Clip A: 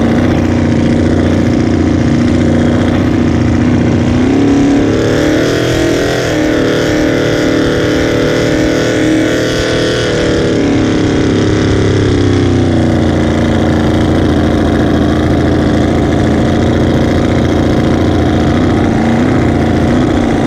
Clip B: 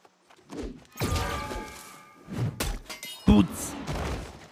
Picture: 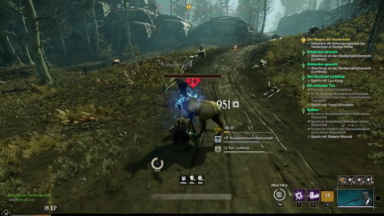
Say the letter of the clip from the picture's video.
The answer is B